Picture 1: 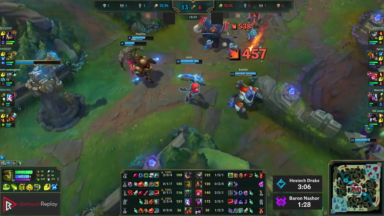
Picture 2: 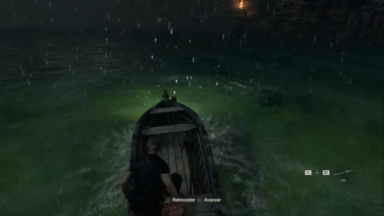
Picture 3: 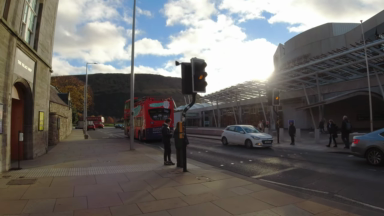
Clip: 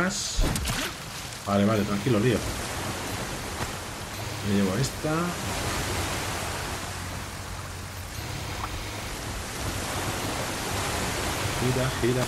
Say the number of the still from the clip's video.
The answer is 2